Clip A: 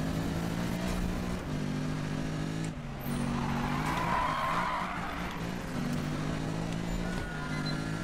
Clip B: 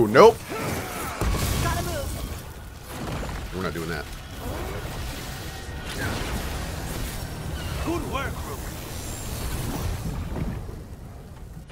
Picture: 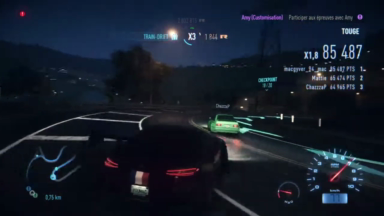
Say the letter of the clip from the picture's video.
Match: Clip A